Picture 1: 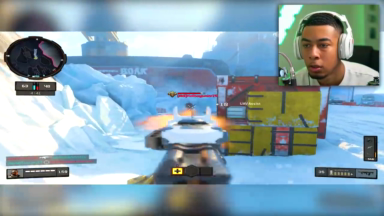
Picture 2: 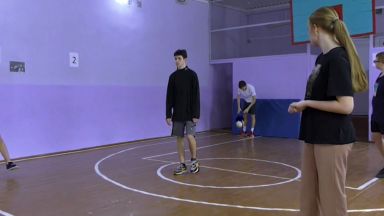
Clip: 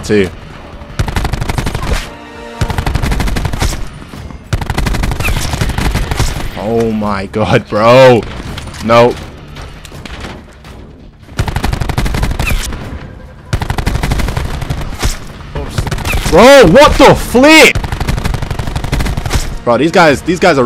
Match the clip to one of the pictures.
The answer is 1